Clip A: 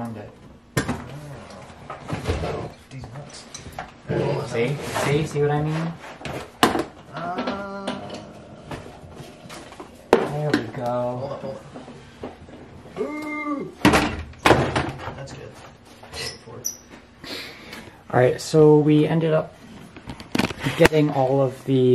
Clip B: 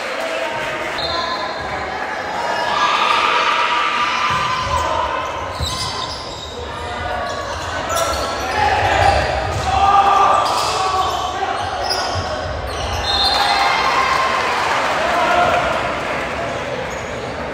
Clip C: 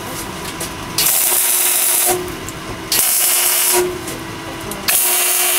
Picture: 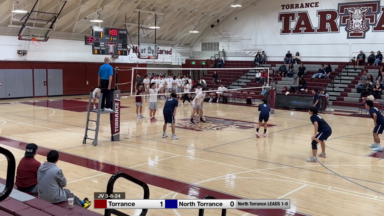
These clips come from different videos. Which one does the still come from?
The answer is B